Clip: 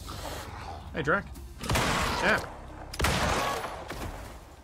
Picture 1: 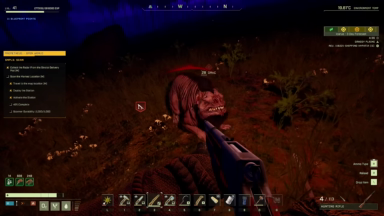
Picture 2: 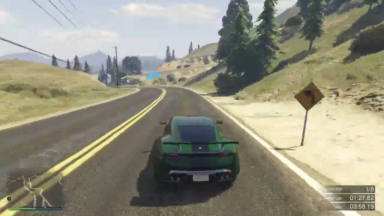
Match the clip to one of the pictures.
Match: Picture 1